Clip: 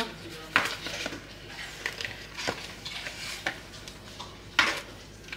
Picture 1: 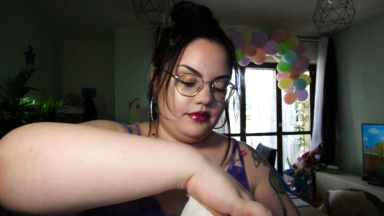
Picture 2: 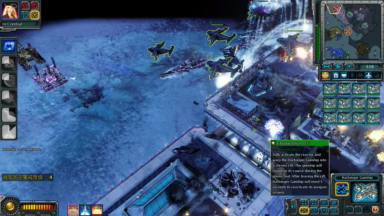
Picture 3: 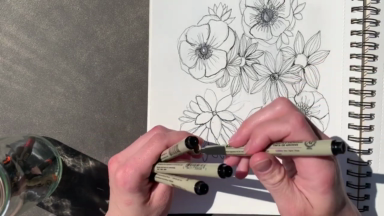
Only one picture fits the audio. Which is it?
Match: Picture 1